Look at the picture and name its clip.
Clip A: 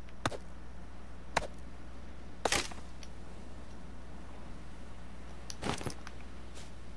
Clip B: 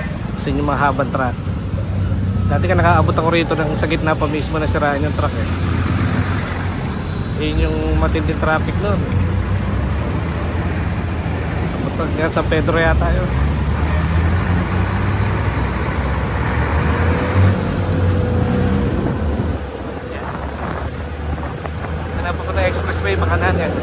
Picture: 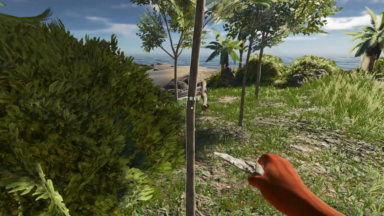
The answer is A